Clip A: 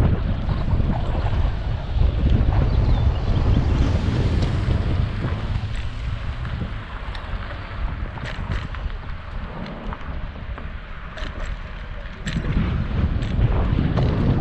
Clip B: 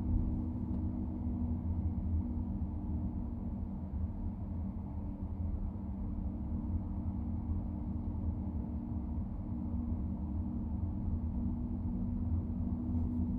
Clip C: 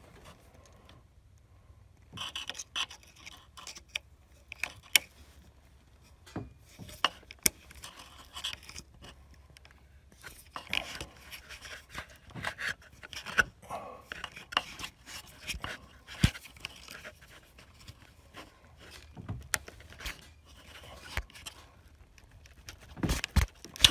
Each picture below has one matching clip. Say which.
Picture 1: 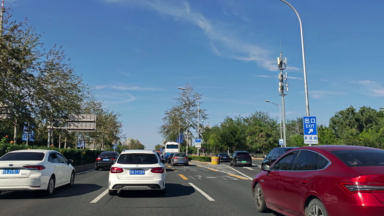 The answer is B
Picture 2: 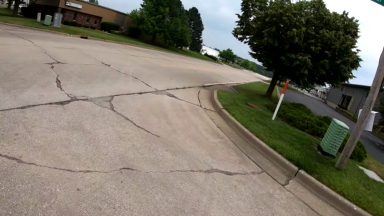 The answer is A